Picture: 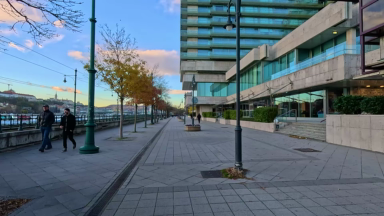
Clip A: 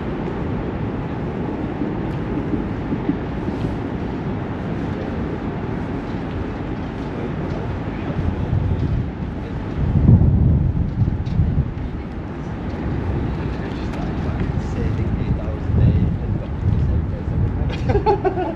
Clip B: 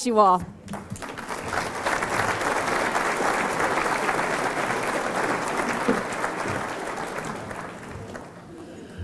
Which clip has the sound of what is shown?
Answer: A